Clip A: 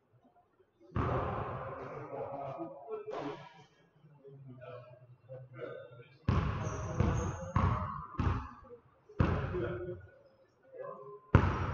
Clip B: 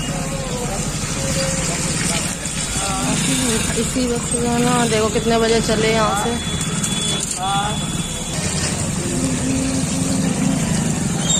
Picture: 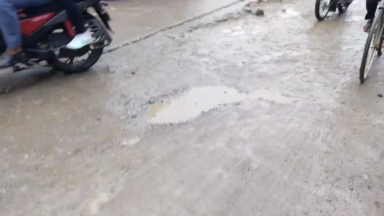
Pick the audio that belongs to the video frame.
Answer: B